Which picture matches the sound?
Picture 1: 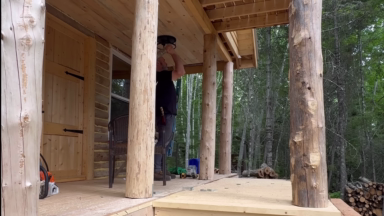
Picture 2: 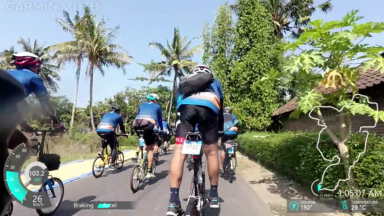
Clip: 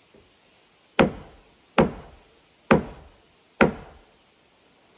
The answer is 1